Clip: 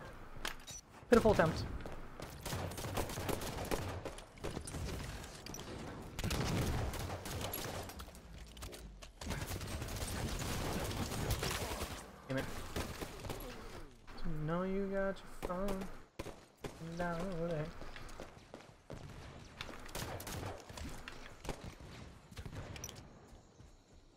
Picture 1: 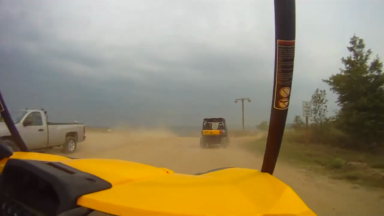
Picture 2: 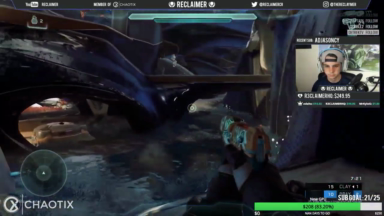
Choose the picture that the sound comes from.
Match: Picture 2